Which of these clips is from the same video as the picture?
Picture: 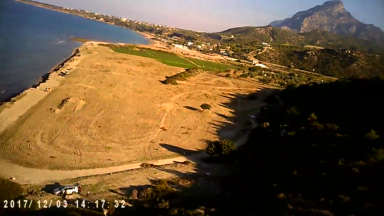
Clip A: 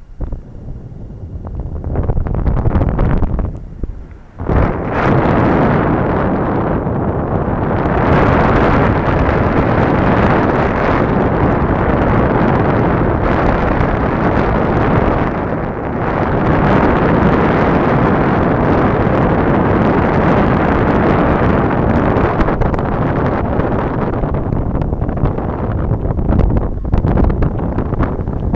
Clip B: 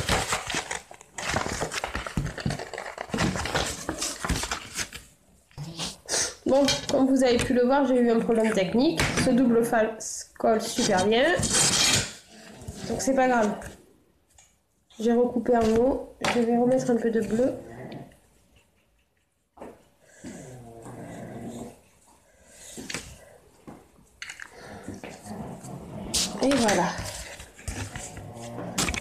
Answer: A